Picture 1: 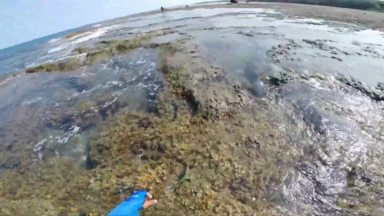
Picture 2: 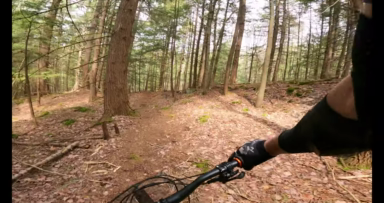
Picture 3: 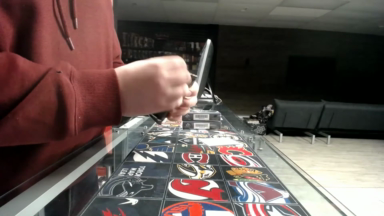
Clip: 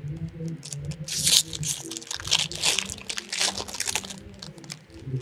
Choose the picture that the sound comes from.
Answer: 3